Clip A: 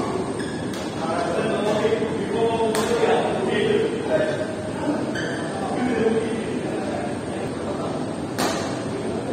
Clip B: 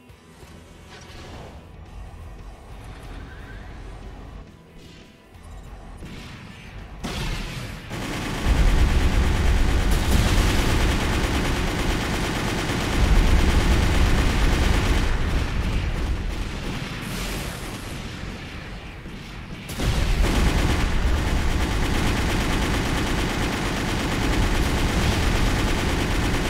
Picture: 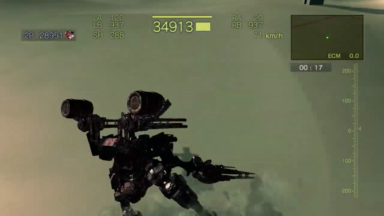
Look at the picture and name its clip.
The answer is B